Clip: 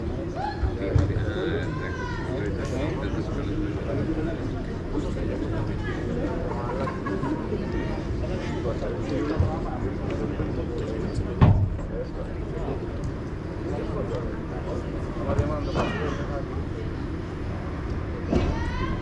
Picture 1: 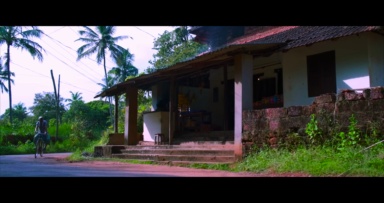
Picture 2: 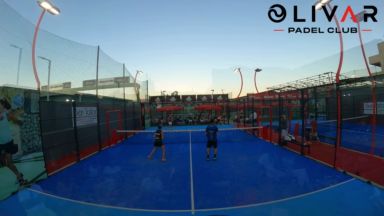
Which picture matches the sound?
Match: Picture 2